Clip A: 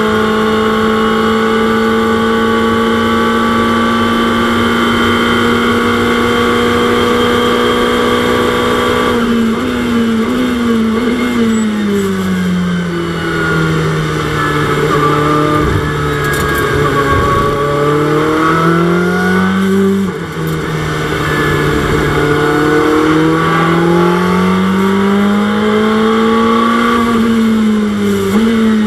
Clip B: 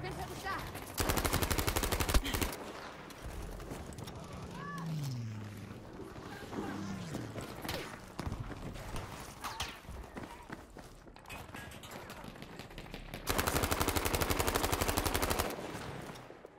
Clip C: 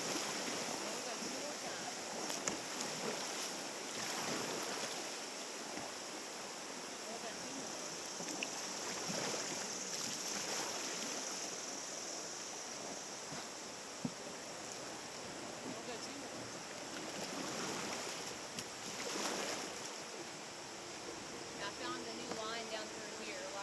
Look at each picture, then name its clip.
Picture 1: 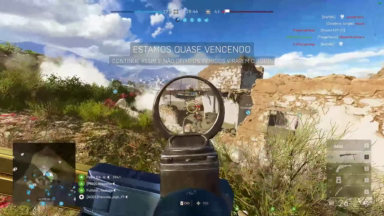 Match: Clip B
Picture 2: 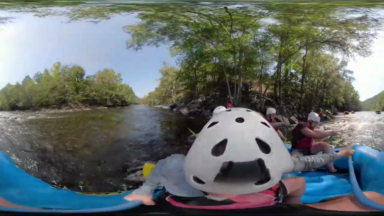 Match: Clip C